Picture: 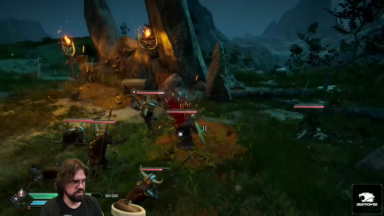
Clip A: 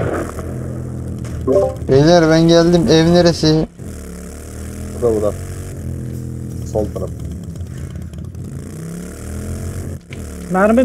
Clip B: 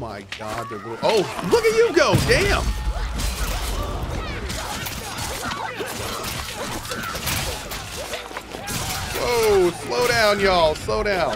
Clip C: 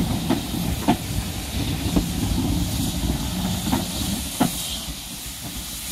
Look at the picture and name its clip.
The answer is B